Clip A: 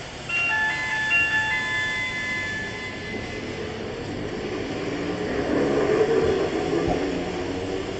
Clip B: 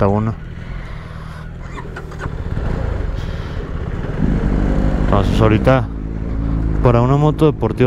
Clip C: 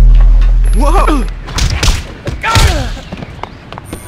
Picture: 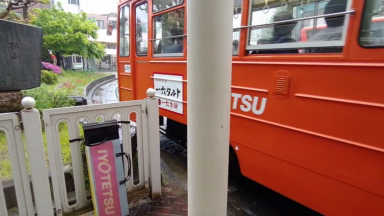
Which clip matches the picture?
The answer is A